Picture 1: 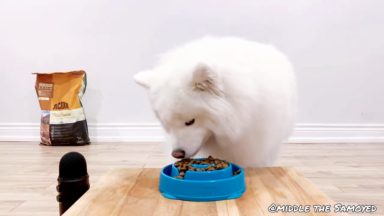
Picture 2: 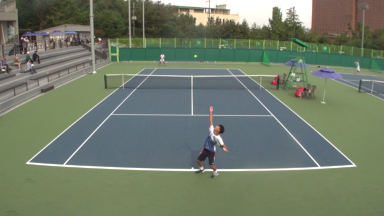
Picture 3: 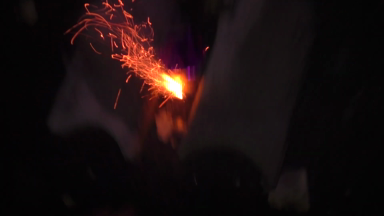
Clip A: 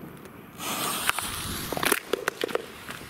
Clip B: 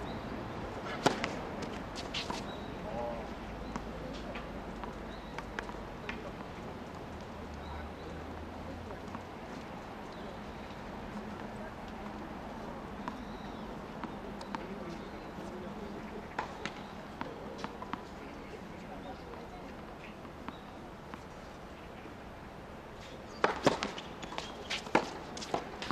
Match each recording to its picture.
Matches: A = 3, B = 2